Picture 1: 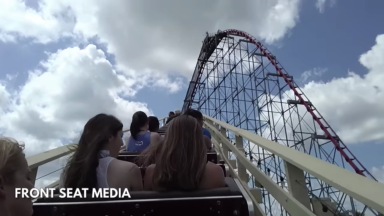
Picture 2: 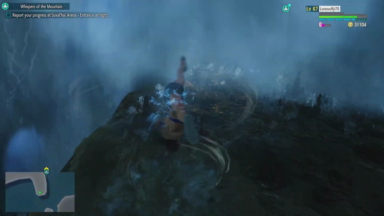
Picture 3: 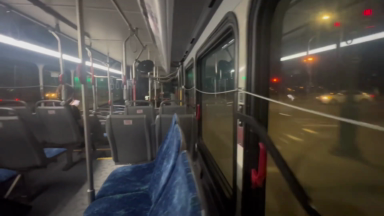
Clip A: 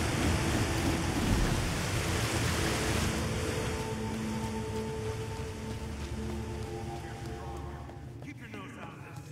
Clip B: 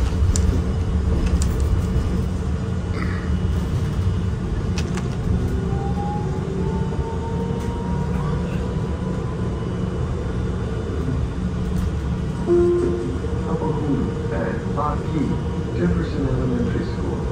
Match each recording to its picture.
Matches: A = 2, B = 3